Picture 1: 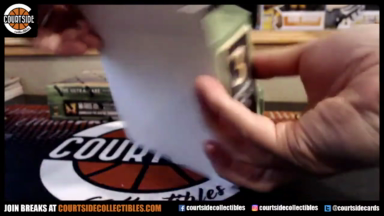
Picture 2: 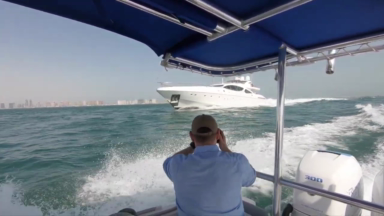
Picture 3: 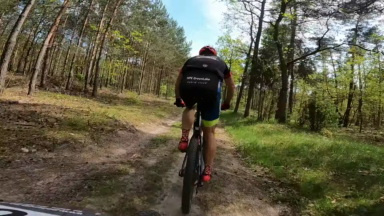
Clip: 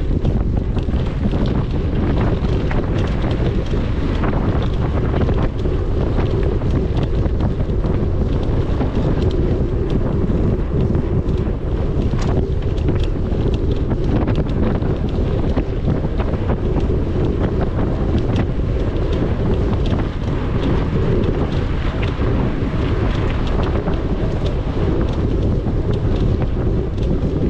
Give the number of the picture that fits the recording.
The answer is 3